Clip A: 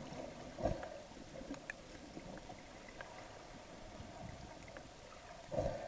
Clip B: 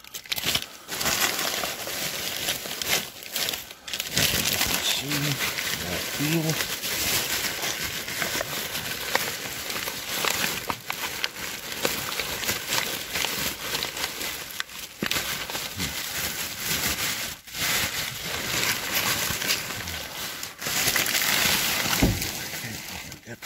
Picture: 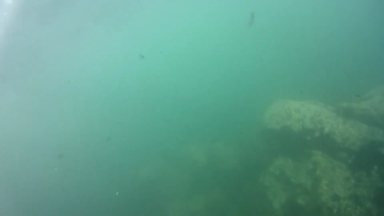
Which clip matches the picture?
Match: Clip A